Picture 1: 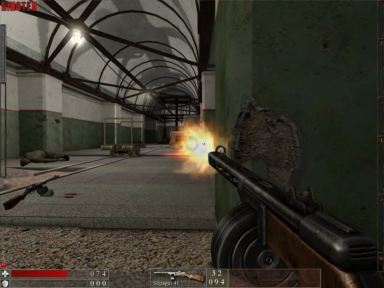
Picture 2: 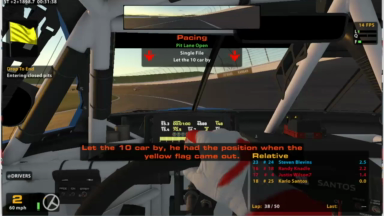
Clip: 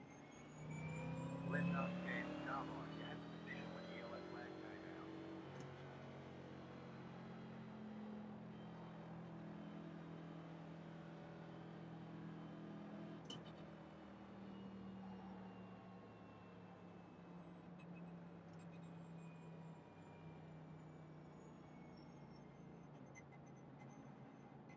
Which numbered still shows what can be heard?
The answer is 2